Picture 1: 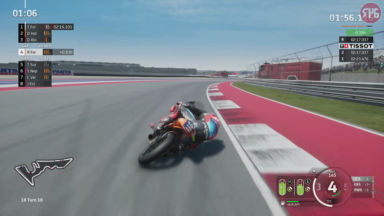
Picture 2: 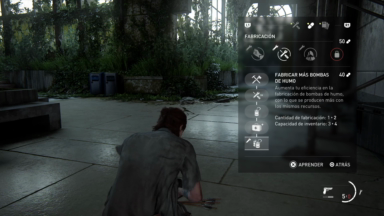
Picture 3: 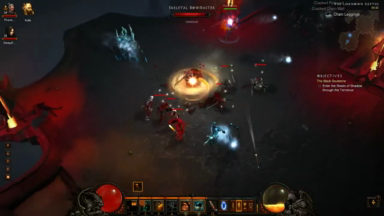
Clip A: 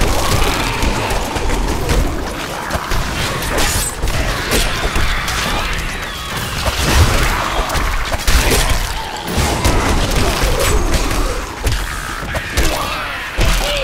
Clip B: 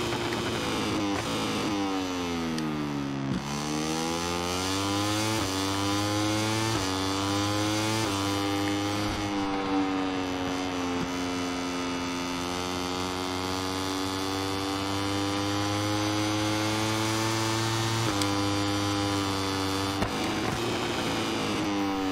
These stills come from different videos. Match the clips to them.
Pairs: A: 3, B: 1